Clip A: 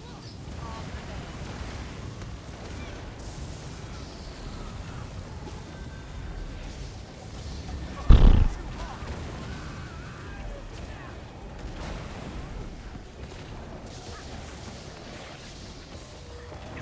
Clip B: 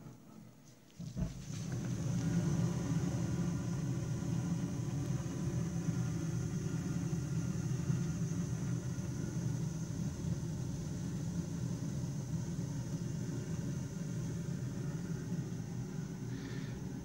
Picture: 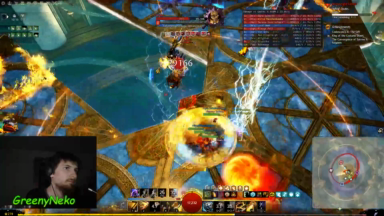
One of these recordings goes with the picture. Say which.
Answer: A